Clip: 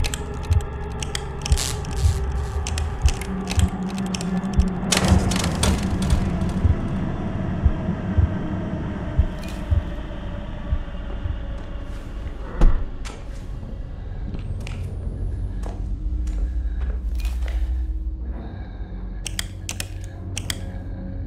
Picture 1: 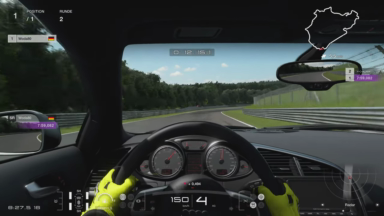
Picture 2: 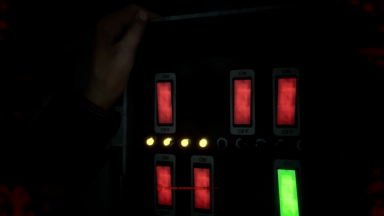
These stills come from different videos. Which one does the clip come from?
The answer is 2